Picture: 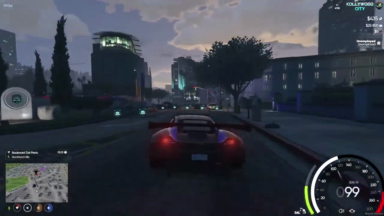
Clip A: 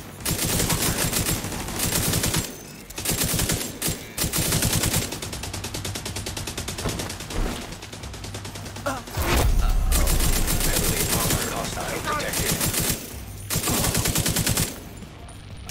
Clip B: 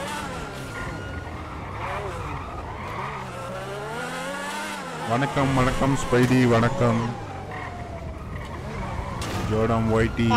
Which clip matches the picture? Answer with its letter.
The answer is B